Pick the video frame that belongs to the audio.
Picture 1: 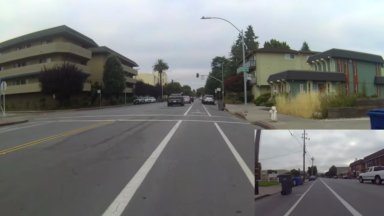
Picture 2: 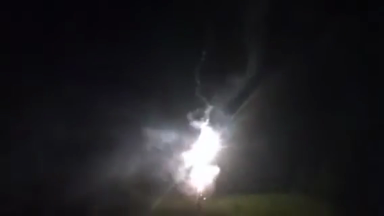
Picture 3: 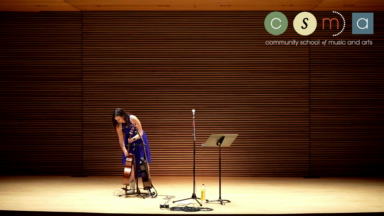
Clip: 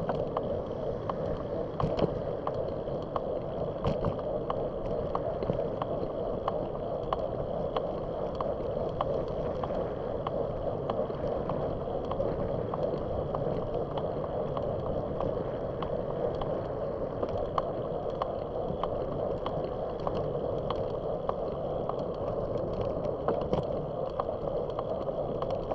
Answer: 1